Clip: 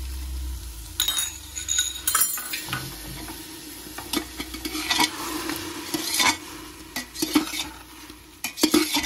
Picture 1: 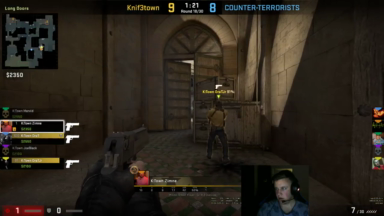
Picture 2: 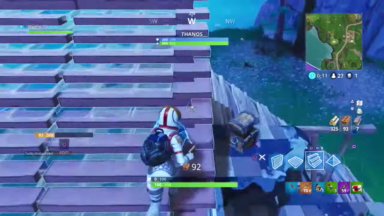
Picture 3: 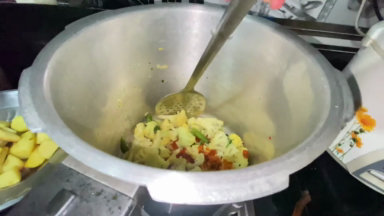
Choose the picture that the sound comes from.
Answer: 3